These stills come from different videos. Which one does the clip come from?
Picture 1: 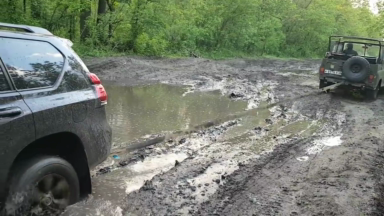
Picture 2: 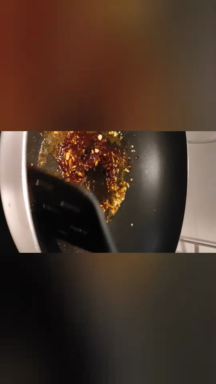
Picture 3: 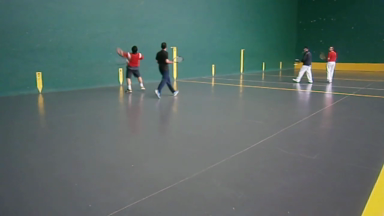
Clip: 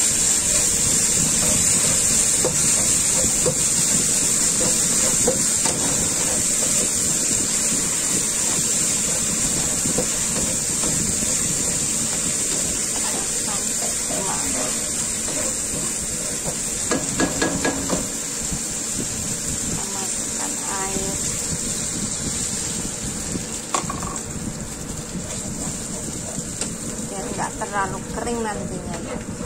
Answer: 2